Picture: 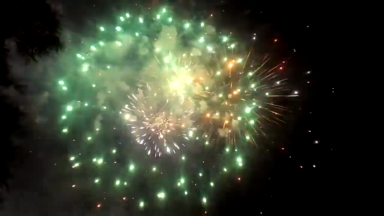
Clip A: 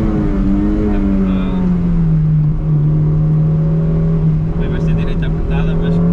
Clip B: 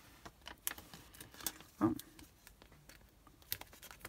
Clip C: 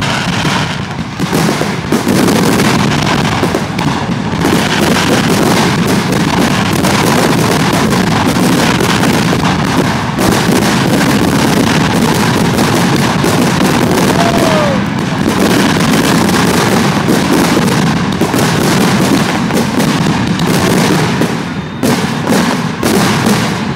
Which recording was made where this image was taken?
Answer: C